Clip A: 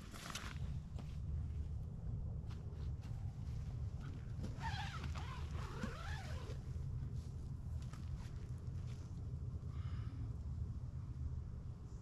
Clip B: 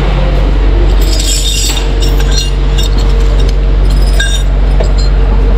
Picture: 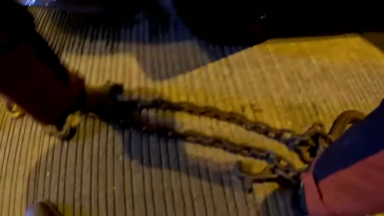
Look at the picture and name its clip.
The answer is B